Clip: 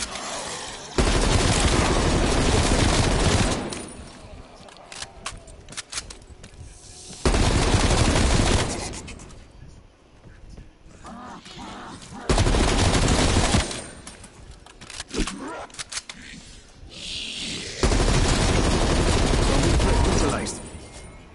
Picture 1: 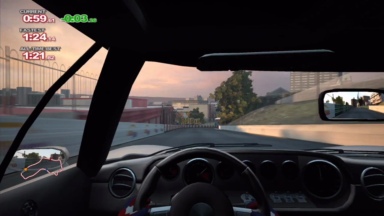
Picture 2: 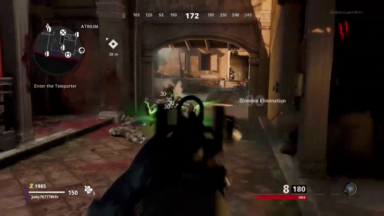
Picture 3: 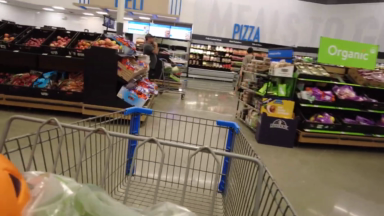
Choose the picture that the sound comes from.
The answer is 2